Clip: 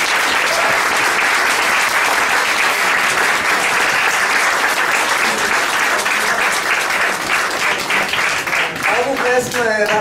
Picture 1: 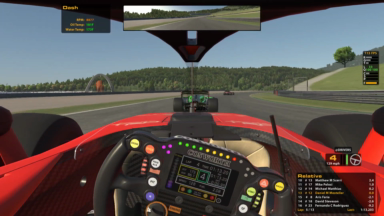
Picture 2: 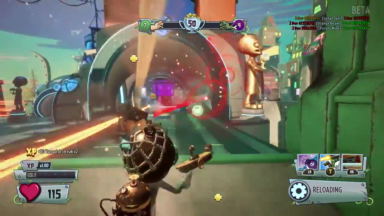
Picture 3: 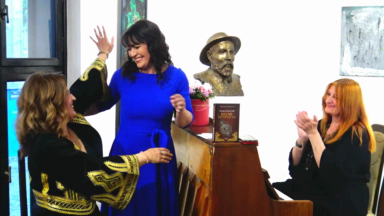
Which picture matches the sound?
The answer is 3